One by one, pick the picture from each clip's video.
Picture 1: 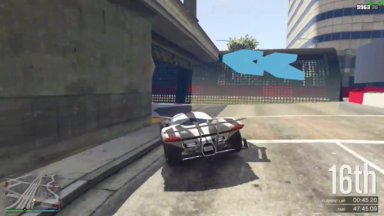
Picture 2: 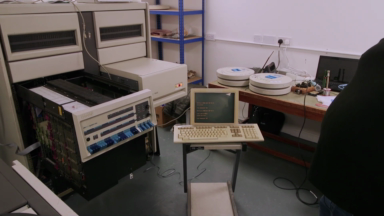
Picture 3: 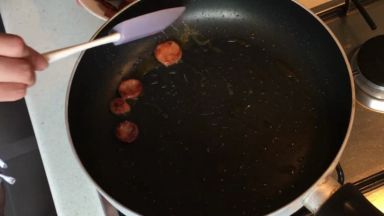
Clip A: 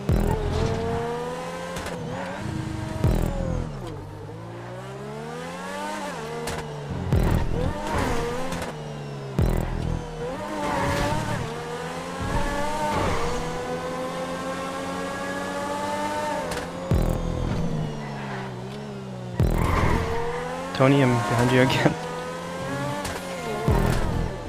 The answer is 1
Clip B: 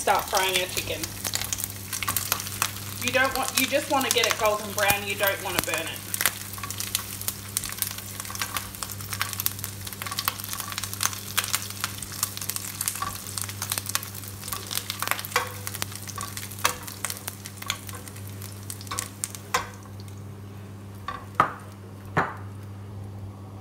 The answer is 3